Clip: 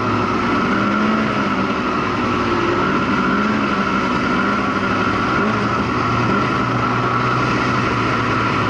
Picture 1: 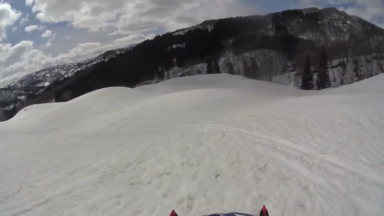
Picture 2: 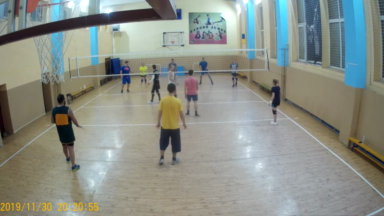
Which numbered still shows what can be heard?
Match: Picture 1